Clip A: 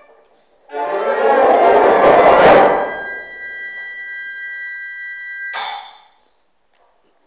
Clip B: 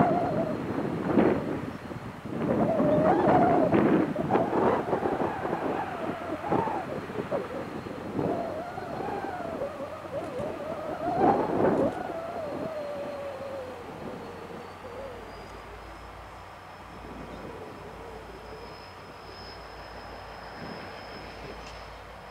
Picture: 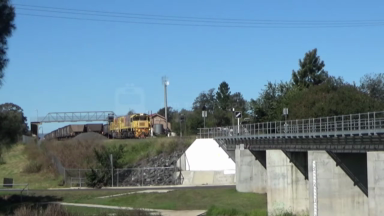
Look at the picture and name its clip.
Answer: B